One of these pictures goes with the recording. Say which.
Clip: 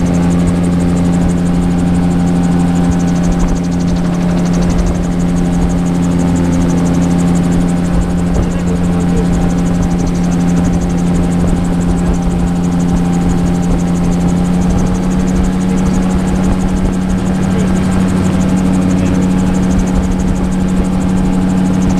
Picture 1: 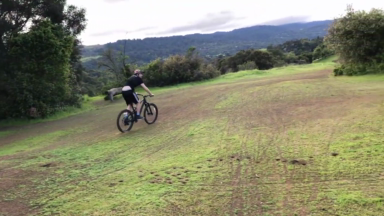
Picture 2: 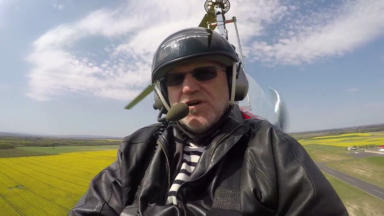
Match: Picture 2